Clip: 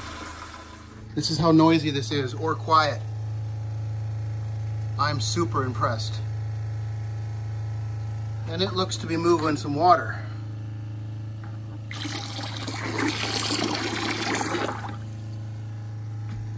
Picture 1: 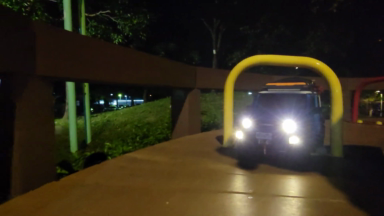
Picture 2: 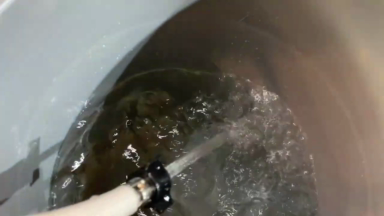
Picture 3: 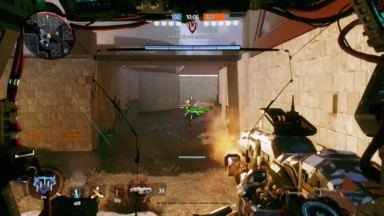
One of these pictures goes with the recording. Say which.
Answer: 2